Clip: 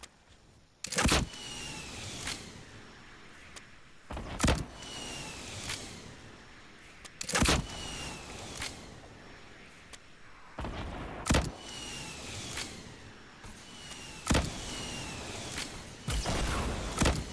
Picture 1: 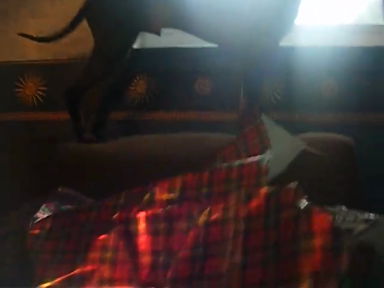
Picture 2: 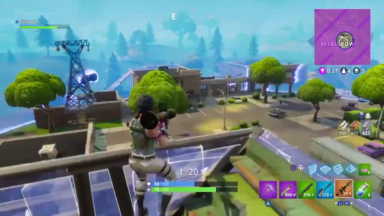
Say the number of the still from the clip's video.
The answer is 2